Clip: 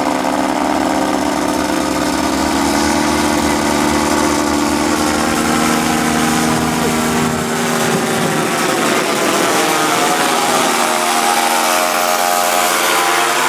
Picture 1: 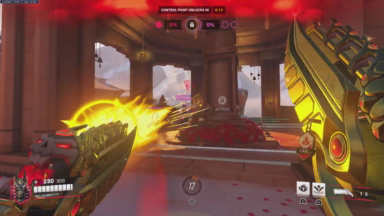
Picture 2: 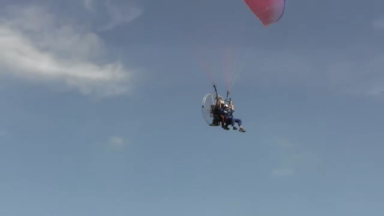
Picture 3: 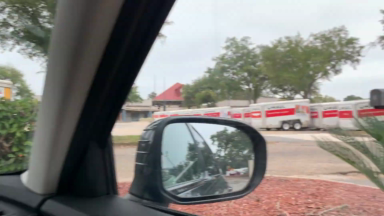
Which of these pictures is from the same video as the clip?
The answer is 2